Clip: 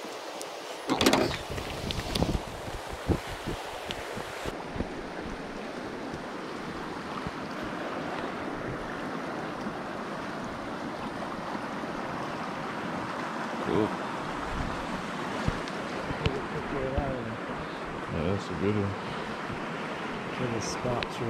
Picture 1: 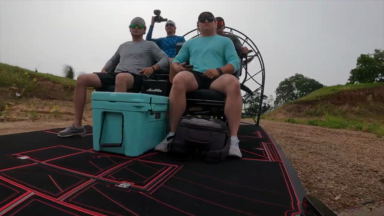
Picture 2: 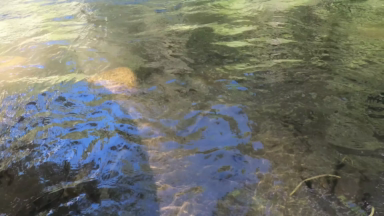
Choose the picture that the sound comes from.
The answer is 2